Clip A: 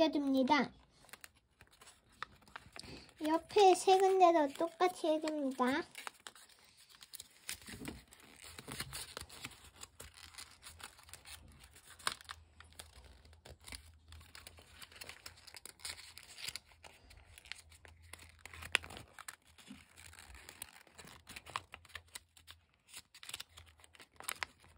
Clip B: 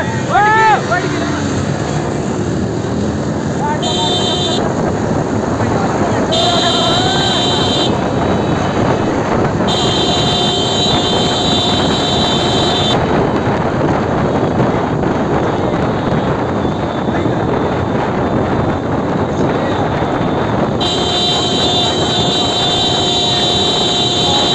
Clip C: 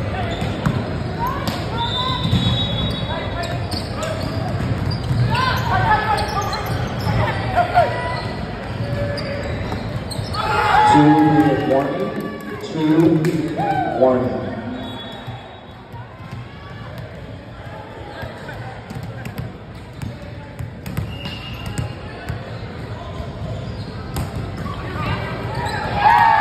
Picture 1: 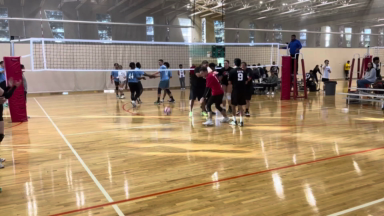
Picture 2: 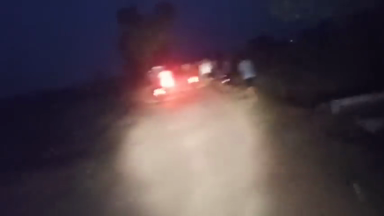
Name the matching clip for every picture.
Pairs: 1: C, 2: B